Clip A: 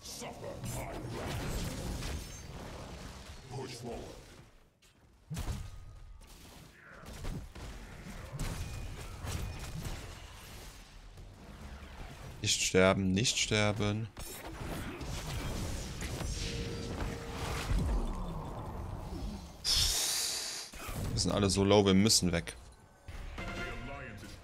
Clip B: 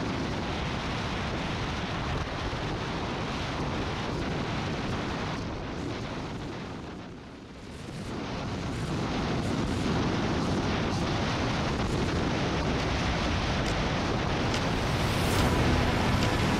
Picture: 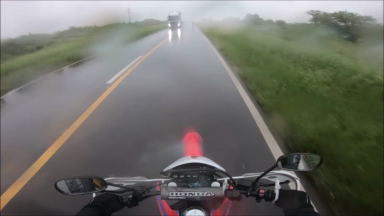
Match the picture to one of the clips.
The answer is B